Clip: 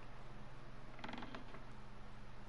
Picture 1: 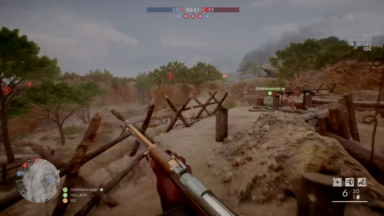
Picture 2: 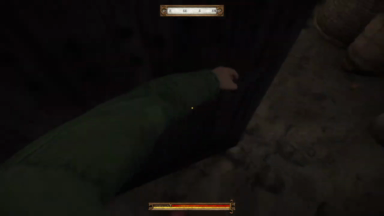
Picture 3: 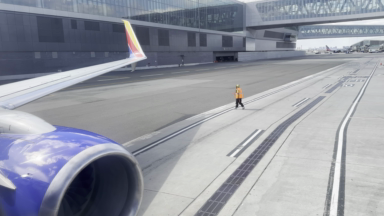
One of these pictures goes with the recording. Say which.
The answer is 2